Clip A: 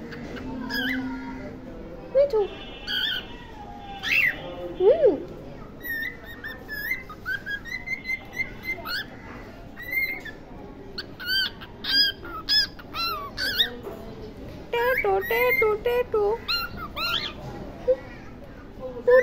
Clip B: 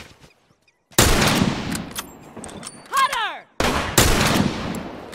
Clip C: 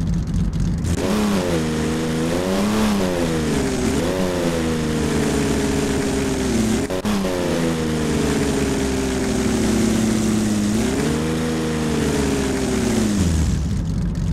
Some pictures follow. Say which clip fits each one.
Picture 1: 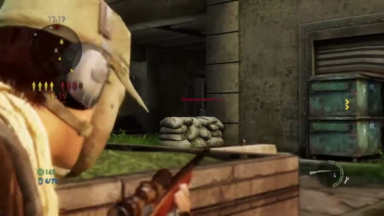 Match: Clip B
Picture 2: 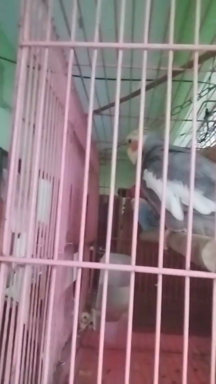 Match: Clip A